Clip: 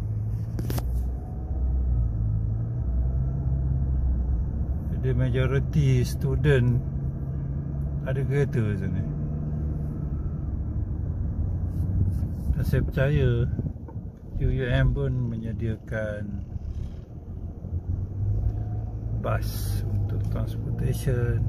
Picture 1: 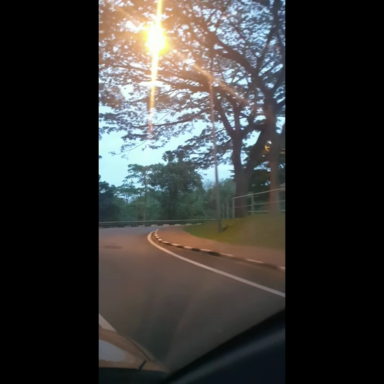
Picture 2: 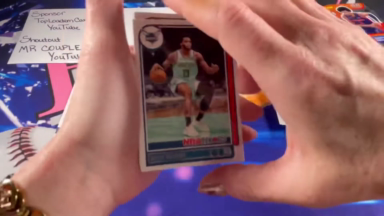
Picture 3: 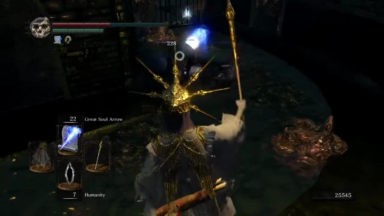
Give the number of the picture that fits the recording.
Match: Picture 1